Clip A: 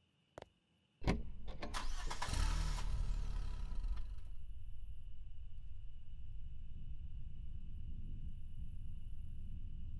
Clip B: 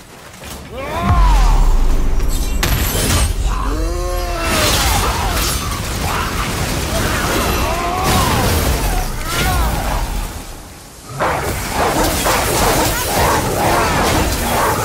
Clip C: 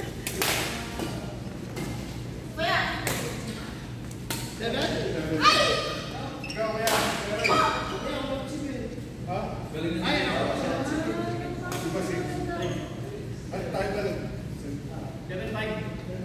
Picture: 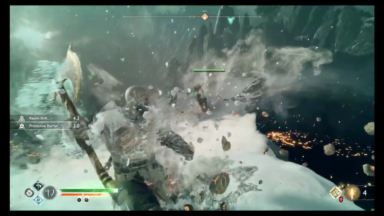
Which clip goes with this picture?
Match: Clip B